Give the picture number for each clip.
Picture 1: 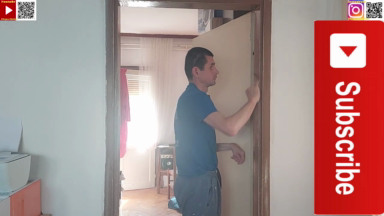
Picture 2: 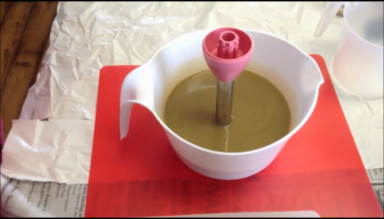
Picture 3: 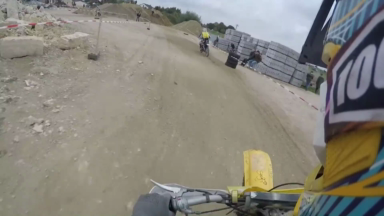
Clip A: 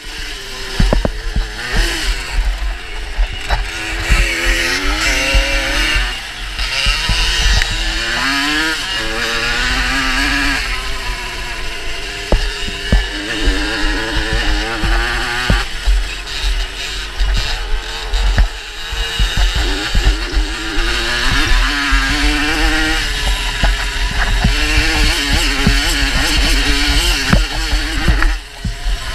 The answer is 3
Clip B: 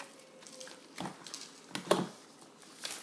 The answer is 2